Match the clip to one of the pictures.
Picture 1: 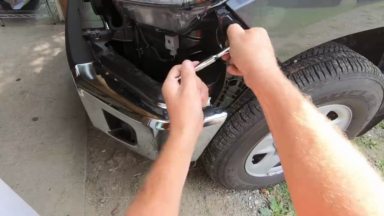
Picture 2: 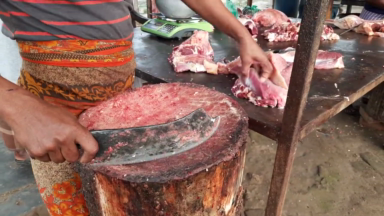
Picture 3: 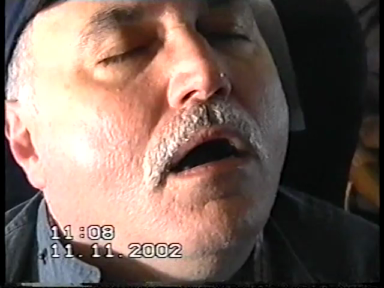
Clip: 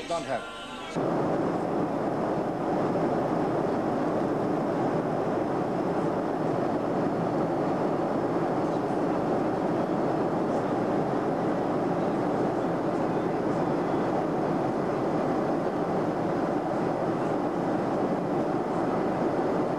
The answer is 3